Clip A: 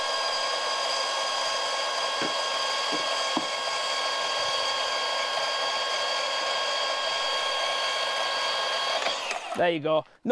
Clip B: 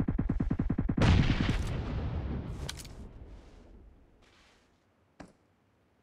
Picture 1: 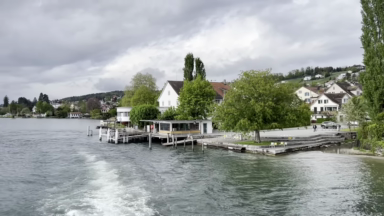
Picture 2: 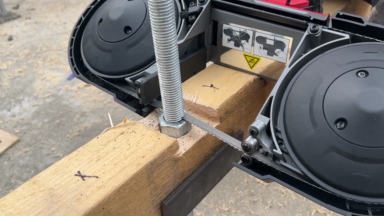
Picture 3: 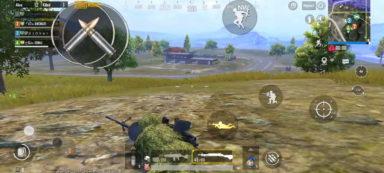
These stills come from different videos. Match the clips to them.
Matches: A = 2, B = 3